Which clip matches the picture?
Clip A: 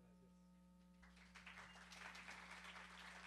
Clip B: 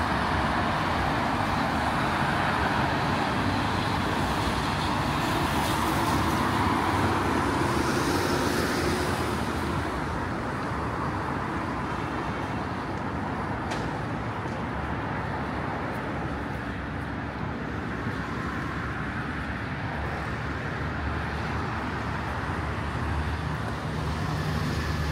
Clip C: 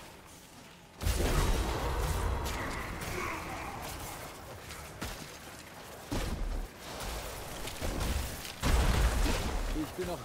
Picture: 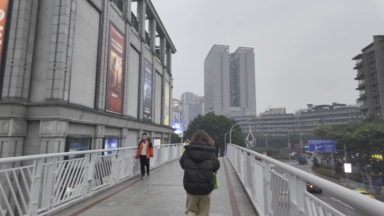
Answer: B